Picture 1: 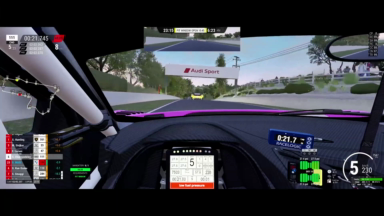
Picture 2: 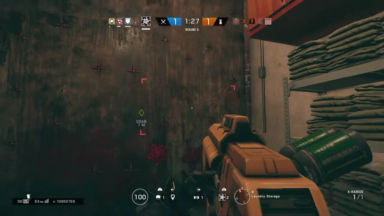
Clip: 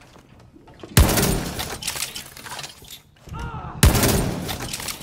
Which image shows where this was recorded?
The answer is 2